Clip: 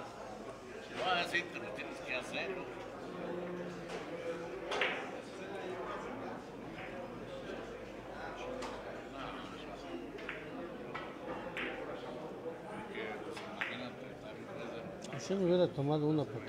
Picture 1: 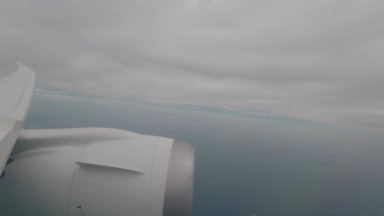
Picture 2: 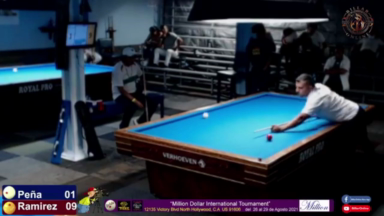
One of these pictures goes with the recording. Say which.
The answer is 2